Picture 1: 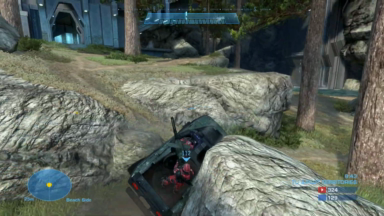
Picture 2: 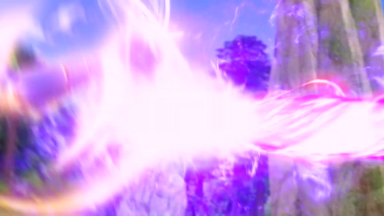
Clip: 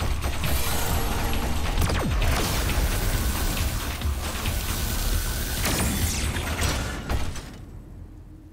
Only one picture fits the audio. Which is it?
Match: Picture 2